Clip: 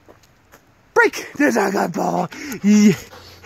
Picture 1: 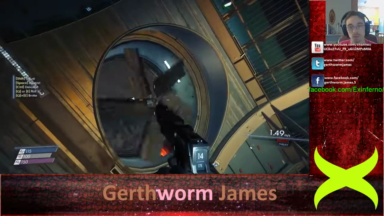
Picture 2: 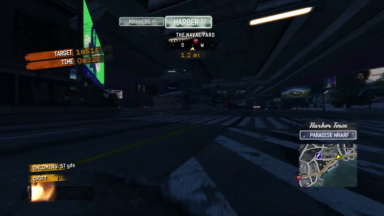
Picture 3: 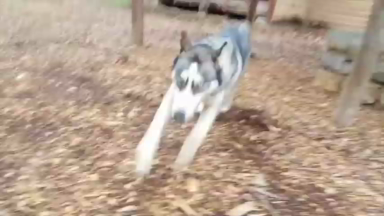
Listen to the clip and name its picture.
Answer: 3